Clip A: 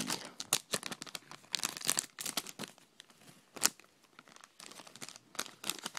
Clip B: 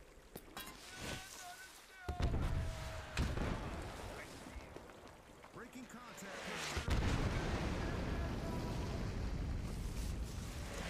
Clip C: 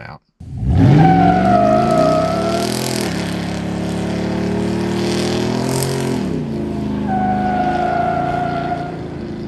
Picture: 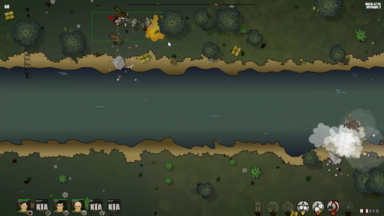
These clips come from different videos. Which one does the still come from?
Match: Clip B